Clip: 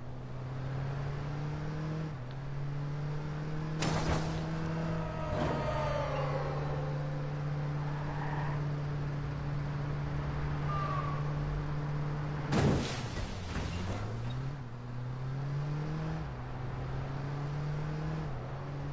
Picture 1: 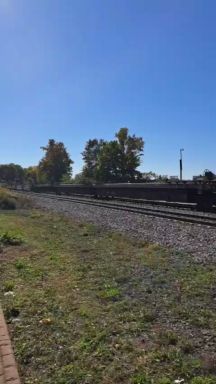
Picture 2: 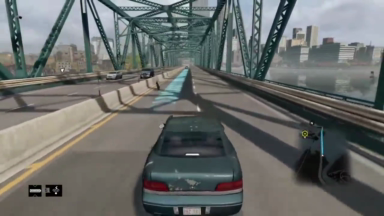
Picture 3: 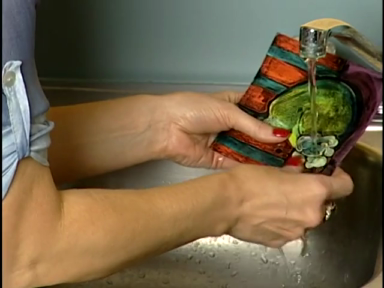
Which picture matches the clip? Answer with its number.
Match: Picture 2